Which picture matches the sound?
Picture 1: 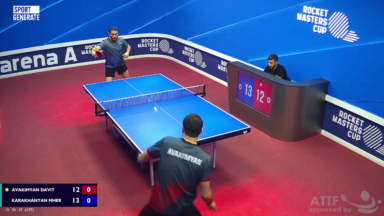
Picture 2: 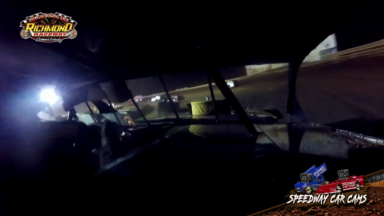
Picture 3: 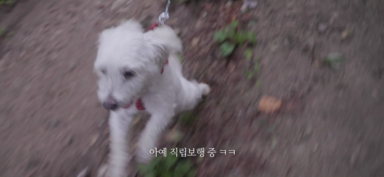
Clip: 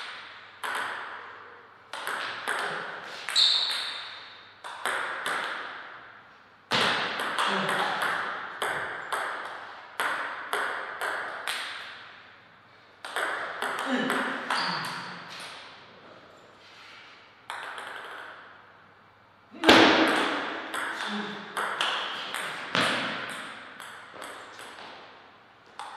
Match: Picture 1